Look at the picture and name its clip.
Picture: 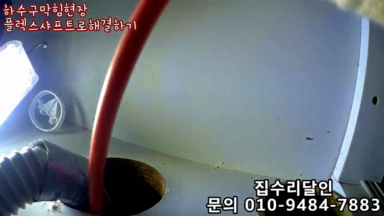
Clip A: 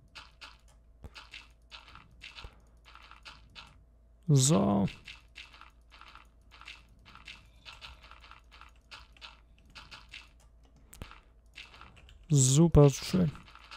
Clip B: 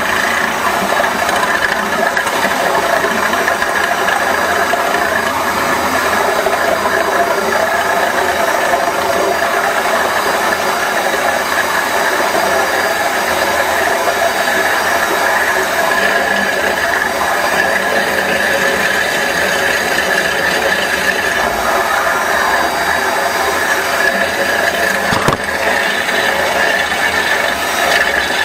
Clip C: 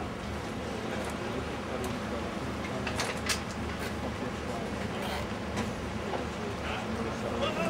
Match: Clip B